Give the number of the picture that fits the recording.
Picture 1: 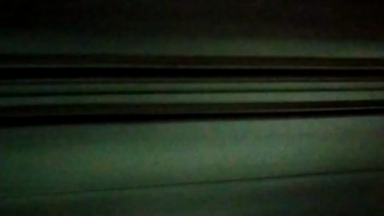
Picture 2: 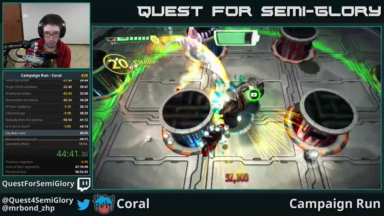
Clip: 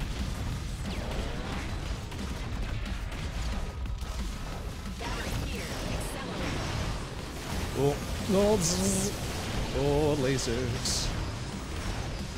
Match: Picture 2